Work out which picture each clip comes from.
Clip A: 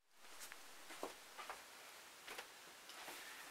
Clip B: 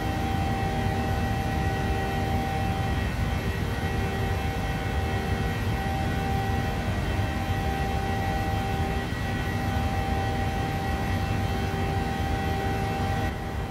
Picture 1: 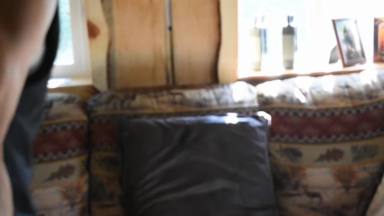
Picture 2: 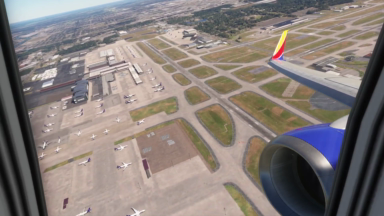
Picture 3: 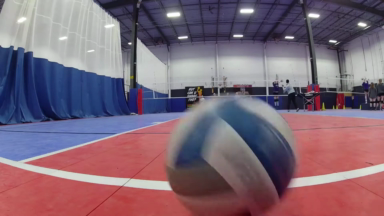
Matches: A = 1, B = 2